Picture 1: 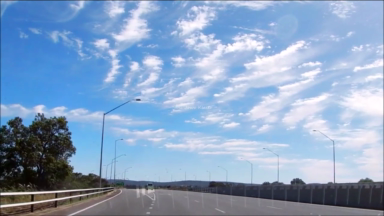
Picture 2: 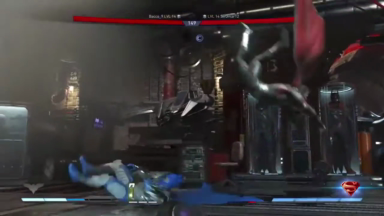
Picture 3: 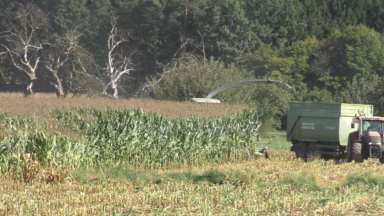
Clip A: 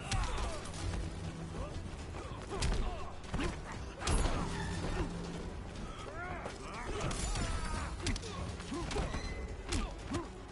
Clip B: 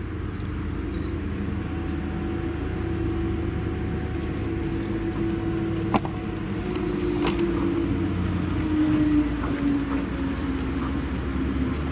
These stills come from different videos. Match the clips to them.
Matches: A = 2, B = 3